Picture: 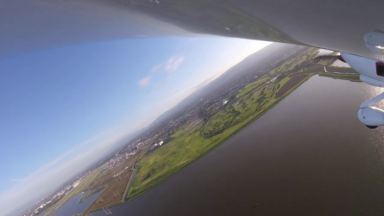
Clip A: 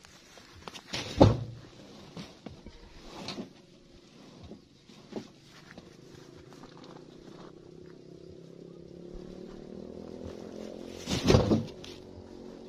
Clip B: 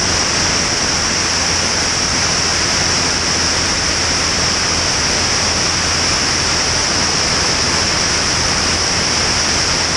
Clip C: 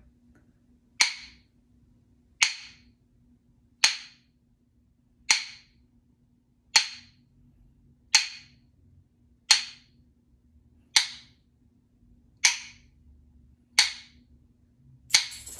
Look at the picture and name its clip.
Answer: B